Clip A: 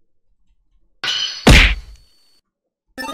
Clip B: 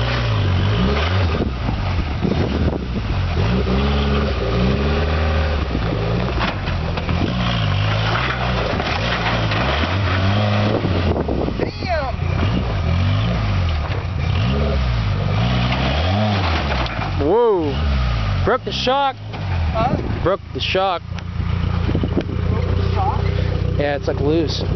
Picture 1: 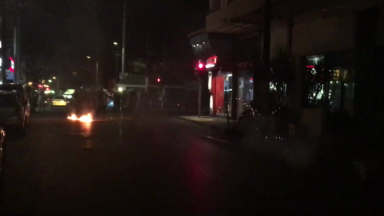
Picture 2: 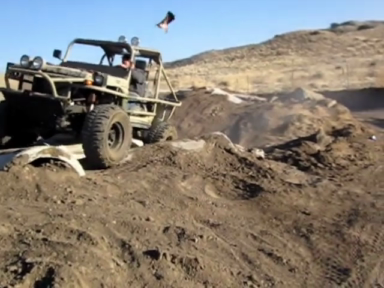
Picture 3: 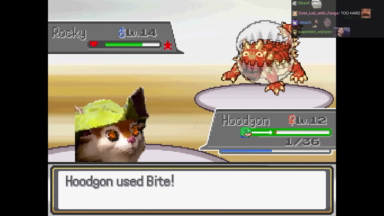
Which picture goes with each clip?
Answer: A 3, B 2